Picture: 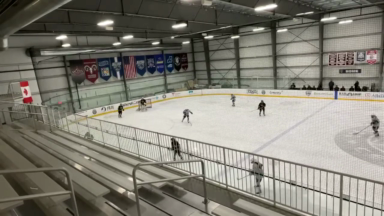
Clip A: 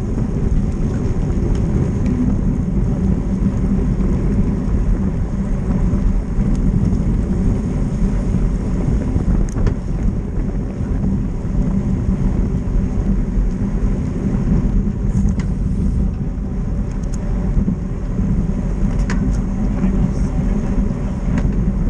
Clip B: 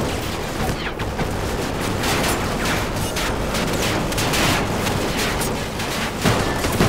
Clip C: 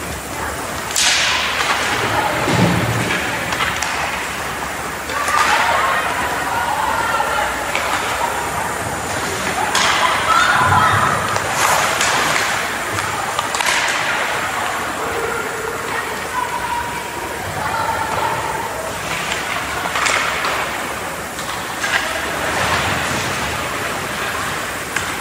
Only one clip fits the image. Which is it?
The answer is C